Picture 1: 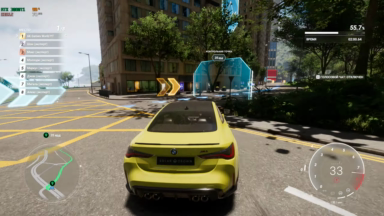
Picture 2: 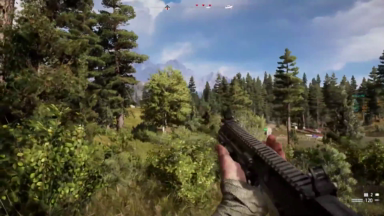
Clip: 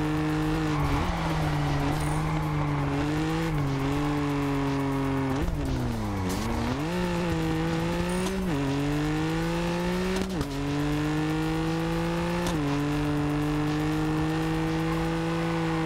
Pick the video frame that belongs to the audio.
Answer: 1